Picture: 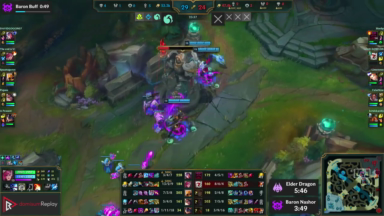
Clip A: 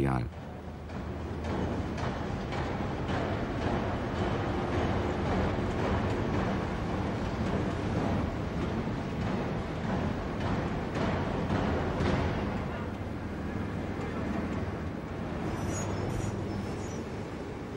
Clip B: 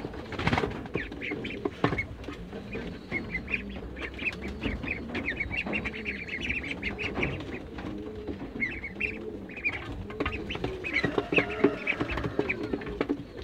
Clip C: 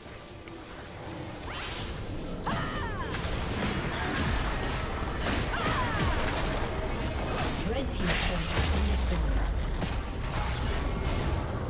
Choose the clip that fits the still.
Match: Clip C